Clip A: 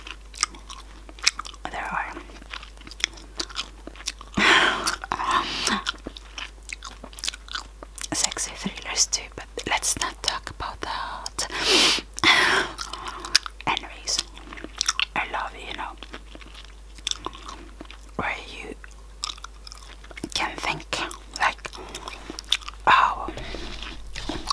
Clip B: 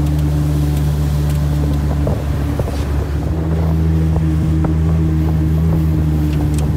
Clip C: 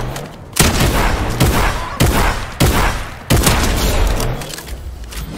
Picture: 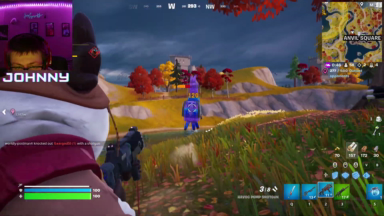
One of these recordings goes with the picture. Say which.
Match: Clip C